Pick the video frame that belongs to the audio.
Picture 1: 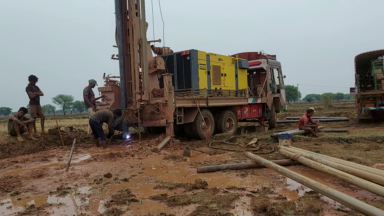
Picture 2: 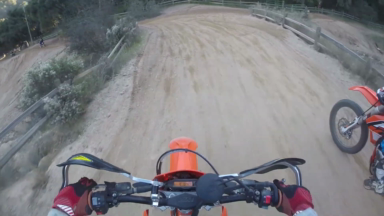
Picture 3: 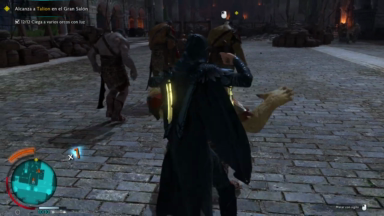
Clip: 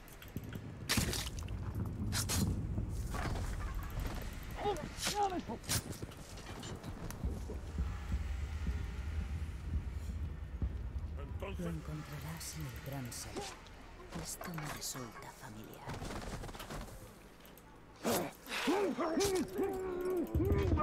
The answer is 3